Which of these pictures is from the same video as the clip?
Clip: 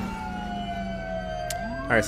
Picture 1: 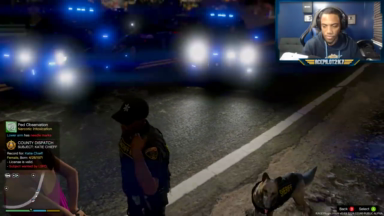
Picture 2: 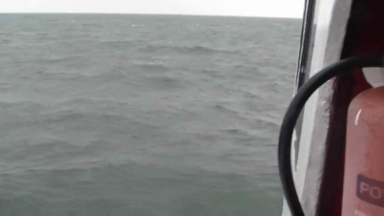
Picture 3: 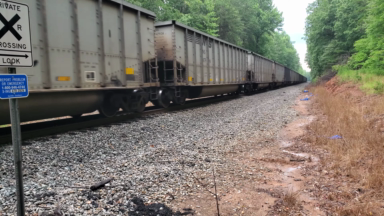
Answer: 1